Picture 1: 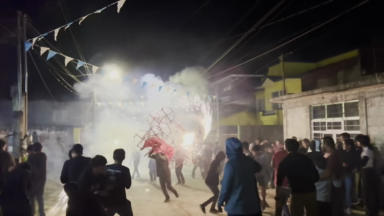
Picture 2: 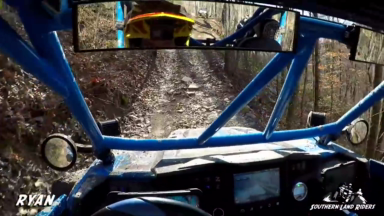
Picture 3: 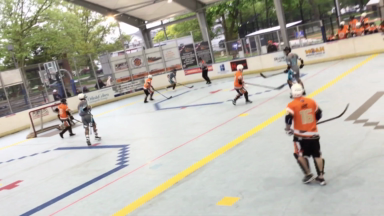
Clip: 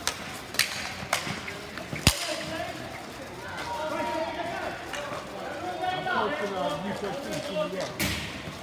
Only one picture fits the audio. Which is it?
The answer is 3